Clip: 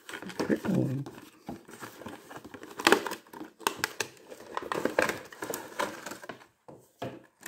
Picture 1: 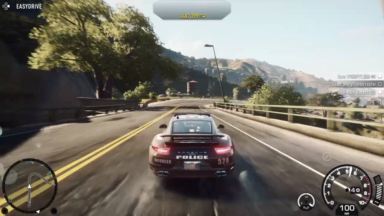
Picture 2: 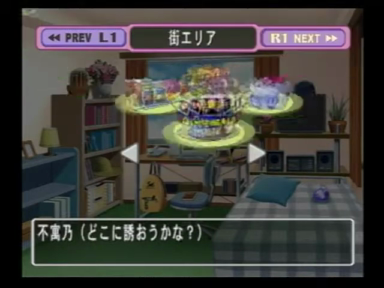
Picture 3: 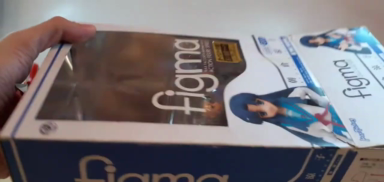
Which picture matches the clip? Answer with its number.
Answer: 3